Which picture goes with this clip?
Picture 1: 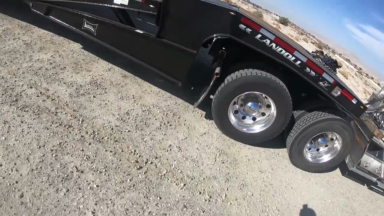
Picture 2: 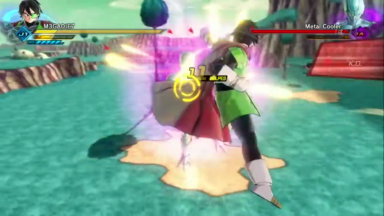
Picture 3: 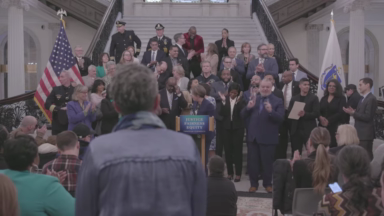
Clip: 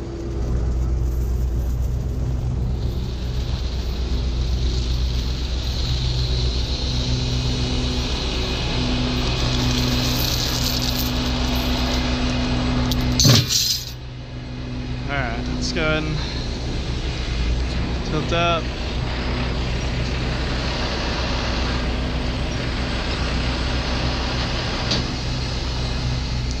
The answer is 1